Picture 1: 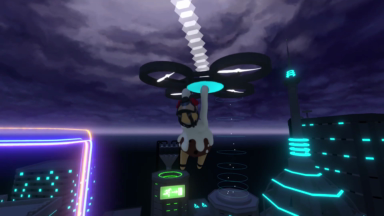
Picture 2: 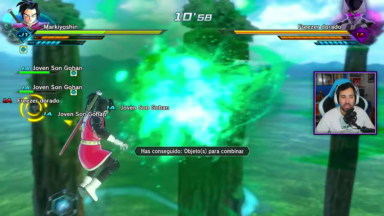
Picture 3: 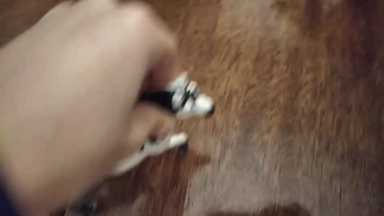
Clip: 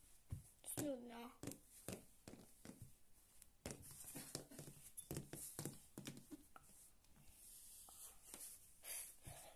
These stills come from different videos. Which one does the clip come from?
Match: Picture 3